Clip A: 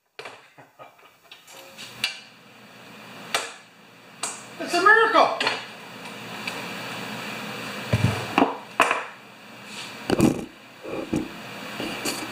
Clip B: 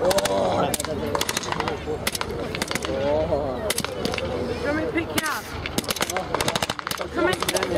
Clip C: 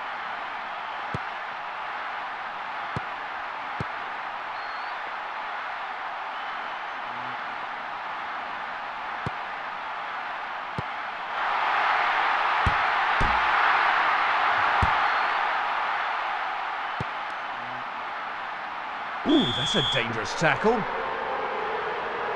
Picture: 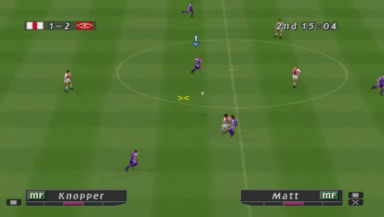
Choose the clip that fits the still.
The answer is C